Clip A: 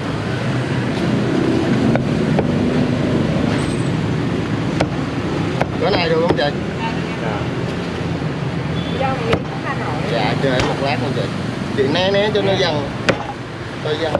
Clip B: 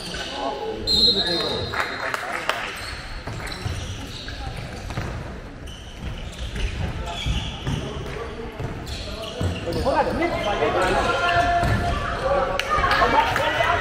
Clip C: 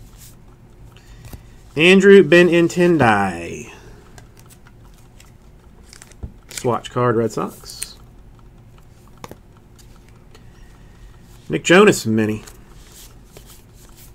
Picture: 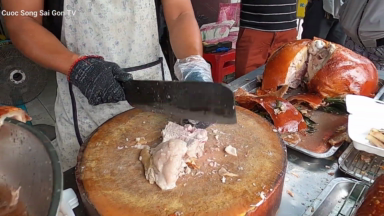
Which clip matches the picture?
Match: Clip A